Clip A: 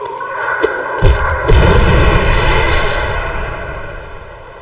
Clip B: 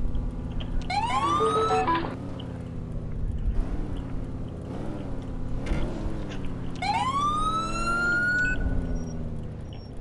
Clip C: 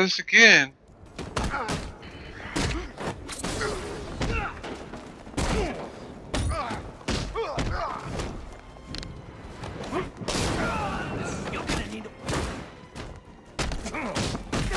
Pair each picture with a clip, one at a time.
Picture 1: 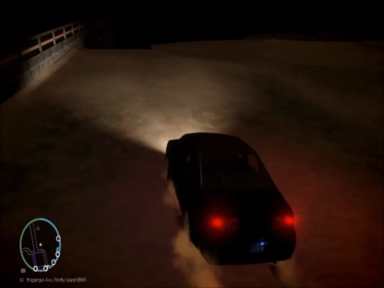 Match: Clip B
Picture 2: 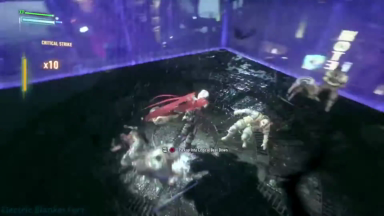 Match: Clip C